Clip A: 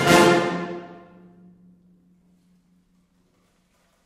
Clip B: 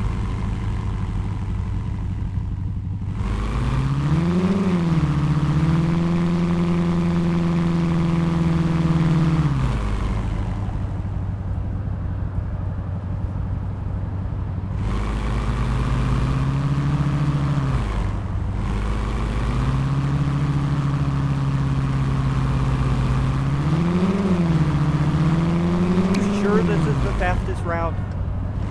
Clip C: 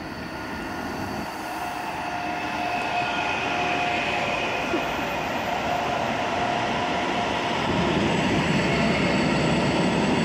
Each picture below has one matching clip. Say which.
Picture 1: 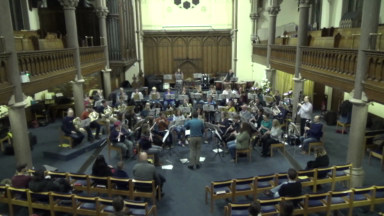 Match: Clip A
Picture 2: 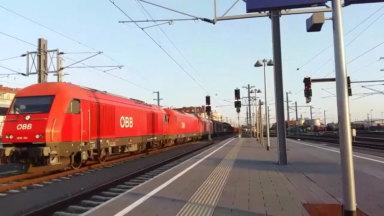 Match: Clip C